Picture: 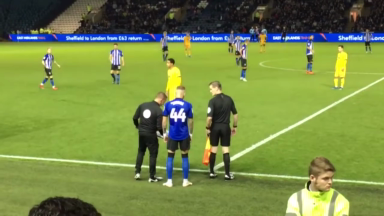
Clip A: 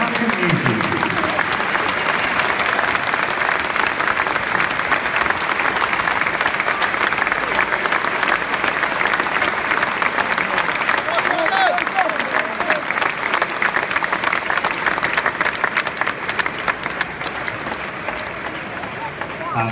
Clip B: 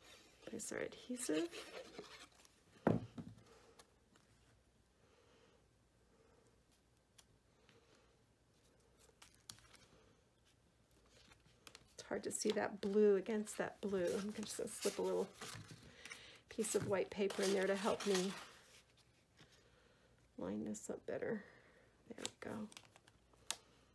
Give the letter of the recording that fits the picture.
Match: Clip A